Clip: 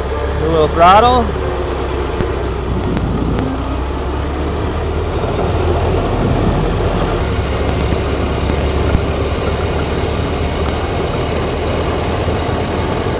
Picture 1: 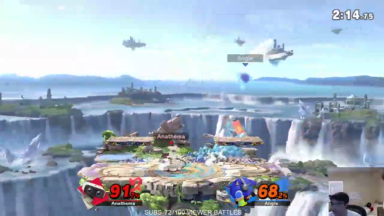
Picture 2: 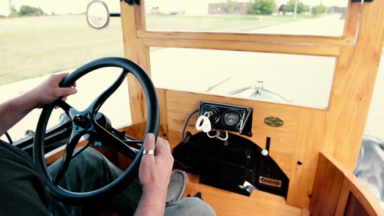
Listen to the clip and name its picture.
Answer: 2